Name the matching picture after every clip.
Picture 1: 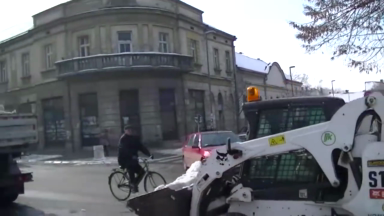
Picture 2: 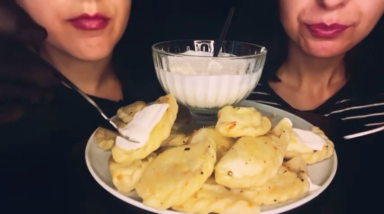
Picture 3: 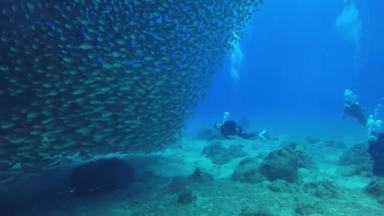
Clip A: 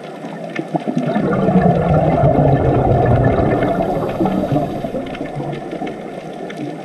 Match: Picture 3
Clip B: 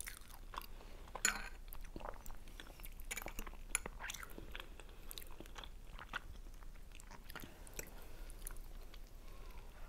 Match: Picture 2